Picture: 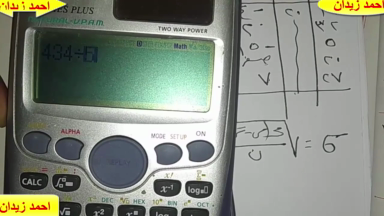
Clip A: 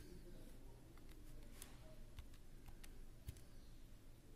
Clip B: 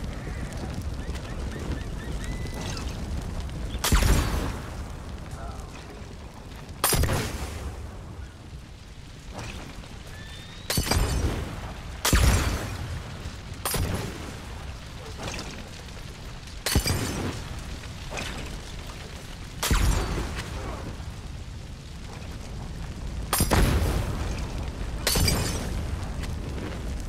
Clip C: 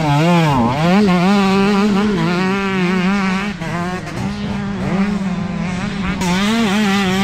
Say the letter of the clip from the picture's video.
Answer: A